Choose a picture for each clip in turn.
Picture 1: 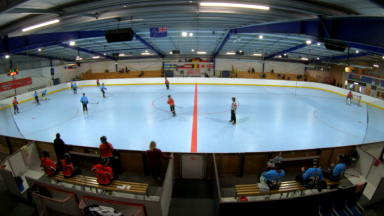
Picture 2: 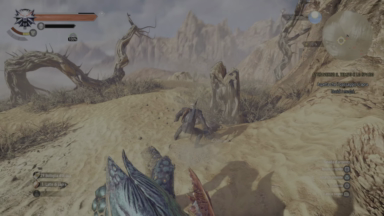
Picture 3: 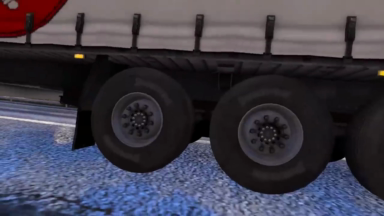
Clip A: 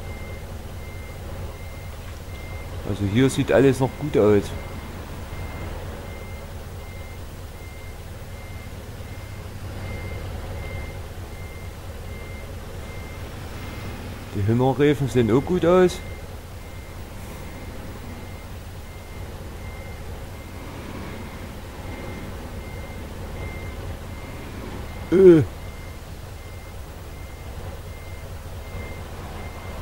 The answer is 3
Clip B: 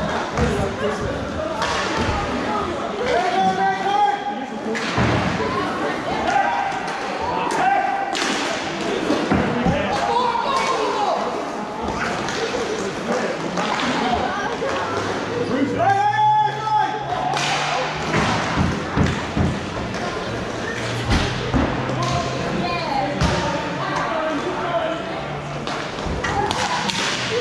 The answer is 1